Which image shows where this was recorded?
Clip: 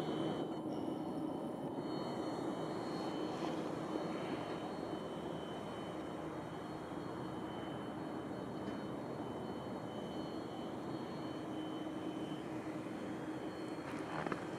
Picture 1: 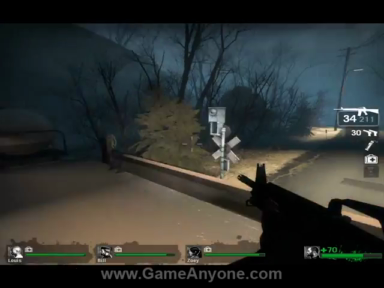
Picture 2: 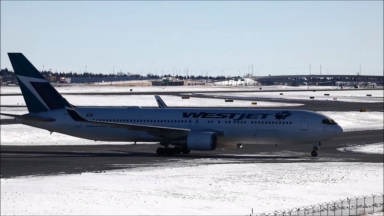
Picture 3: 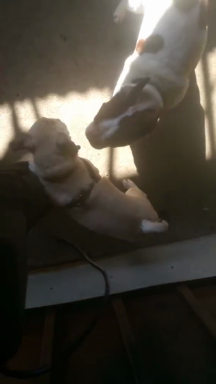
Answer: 2